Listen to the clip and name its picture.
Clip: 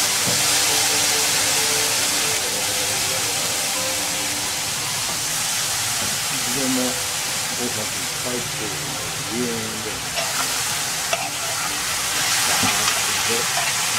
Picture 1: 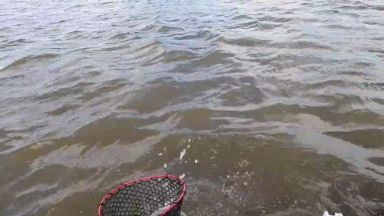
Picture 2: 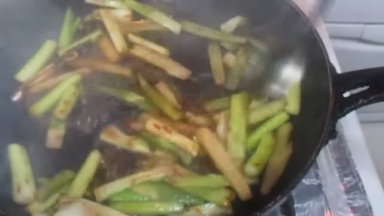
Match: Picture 2